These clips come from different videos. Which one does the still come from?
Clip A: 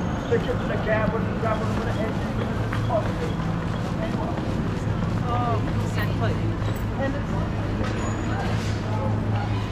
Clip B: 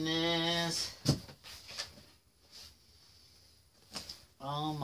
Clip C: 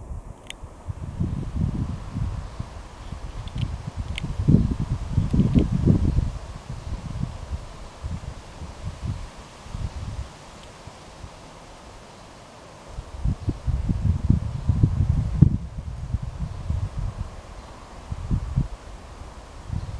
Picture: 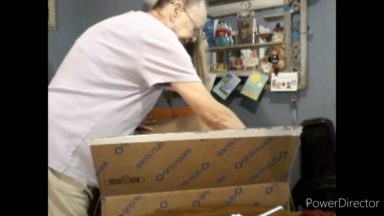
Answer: B